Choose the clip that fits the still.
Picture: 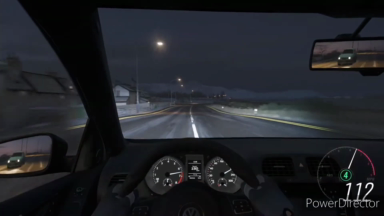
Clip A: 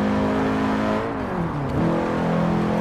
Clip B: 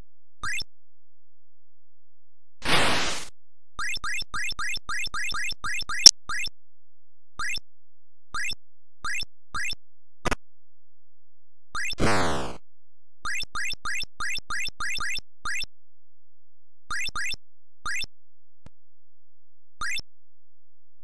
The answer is A